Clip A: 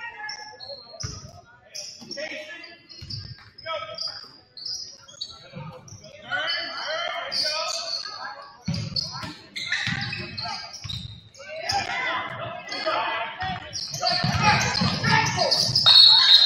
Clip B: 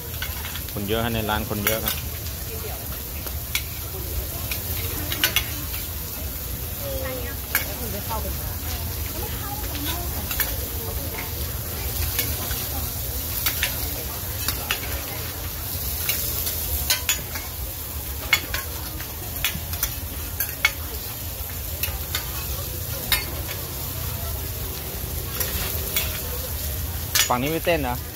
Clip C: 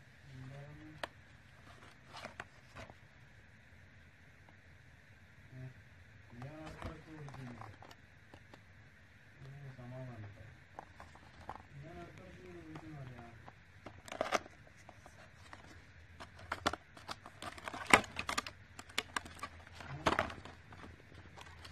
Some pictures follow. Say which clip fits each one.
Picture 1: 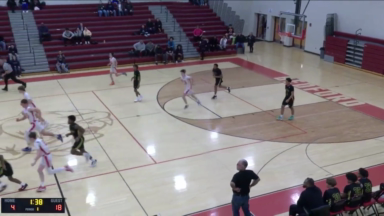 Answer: A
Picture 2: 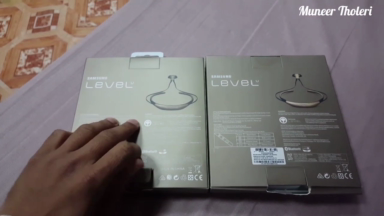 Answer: C